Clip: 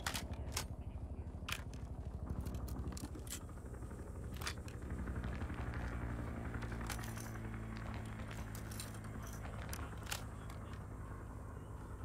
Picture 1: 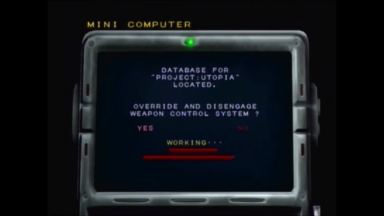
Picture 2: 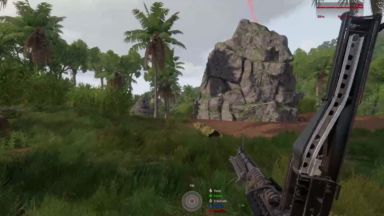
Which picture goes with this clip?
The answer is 2